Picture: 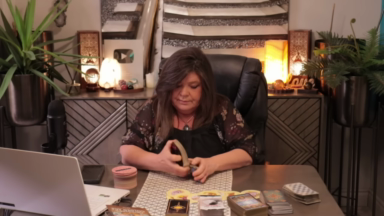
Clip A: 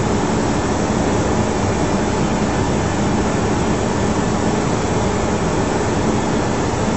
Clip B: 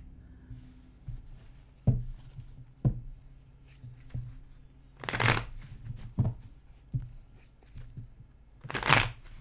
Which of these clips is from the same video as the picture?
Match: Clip B